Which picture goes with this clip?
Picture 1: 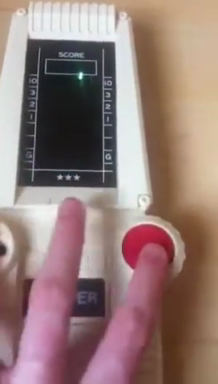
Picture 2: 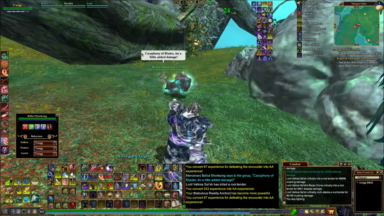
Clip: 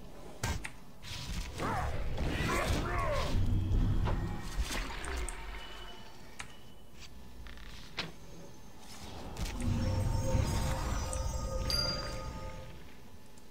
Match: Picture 2